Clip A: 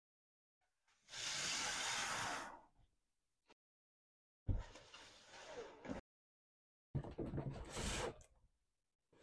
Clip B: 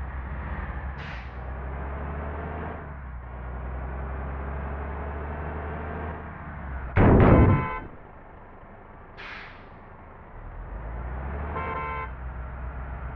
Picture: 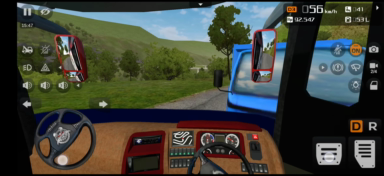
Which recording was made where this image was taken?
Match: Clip B